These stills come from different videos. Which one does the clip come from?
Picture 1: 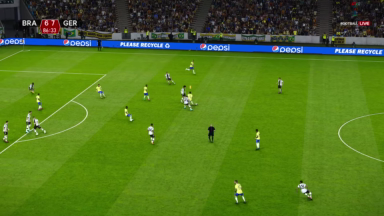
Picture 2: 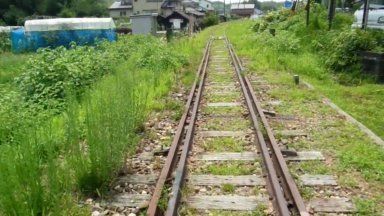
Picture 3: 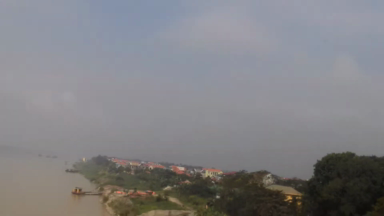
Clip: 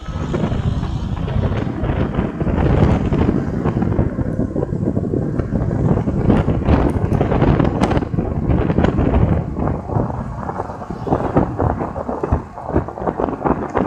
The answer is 3